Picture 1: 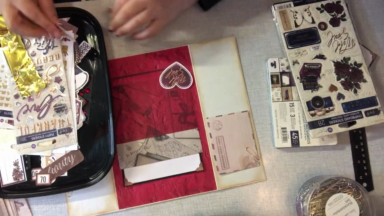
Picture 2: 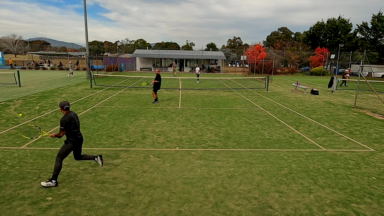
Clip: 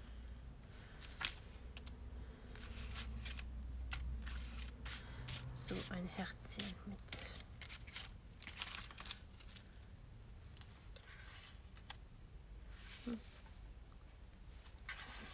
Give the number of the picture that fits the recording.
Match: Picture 1